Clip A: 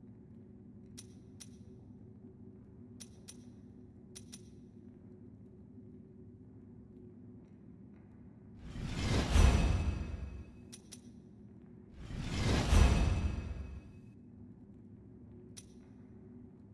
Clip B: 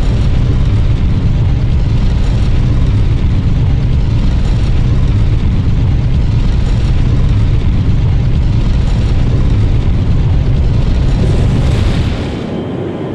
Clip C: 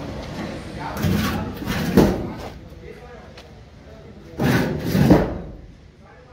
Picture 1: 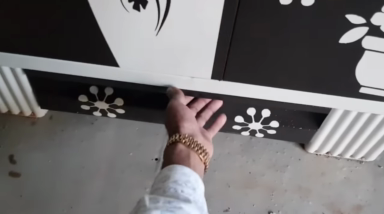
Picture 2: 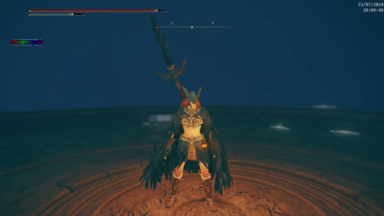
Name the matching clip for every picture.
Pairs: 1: C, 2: B